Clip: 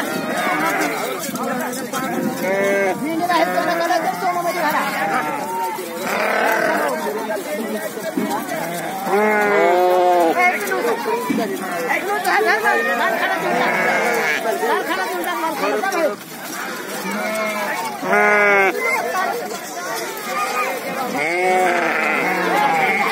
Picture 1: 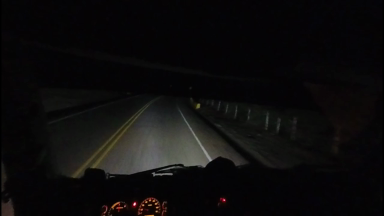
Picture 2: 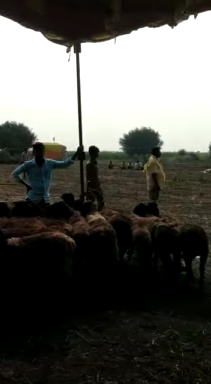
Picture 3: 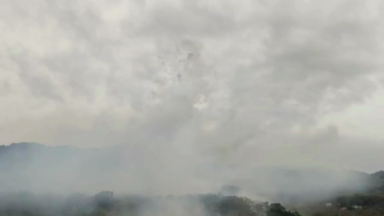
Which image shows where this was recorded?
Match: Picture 2